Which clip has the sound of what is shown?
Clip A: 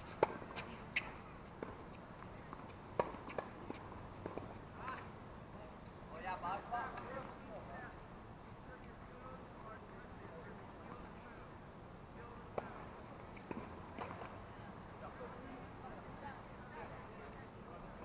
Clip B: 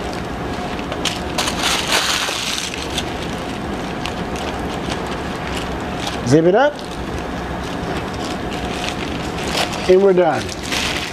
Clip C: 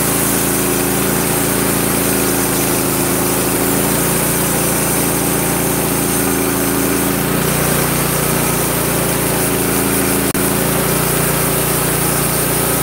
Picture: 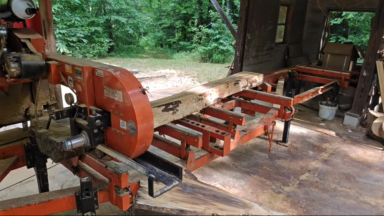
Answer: C